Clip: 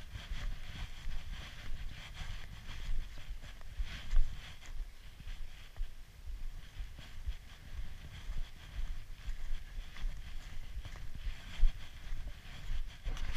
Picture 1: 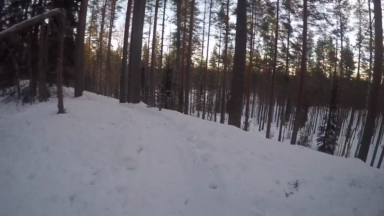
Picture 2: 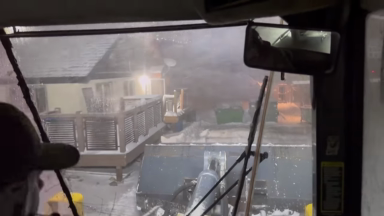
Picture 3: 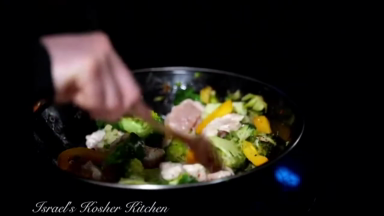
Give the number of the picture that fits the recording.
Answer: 1